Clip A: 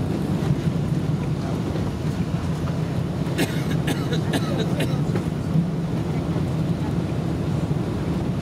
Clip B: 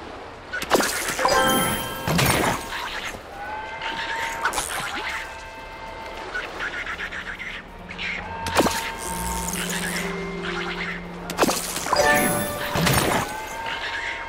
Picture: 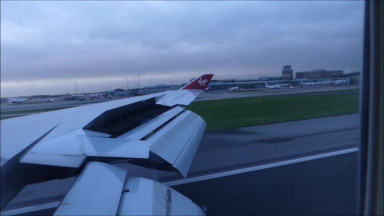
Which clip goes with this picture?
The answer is A